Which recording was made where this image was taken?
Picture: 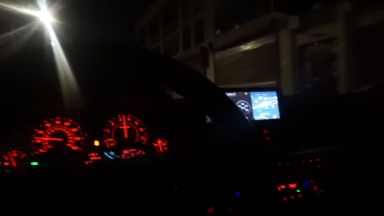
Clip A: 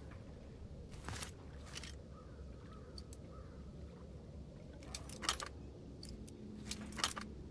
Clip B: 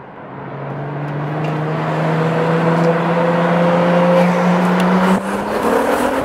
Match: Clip B